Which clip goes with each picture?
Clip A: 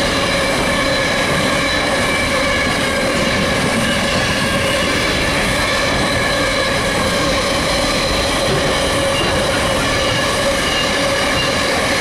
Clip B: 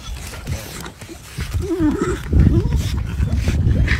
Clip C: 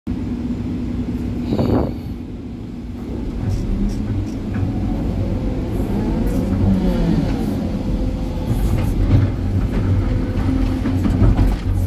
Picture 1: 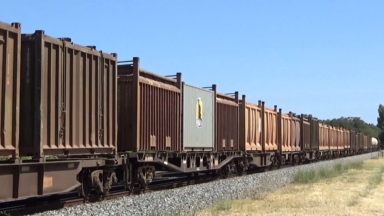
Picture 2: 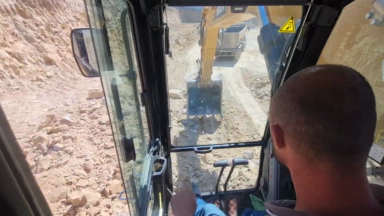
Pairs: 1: A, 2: C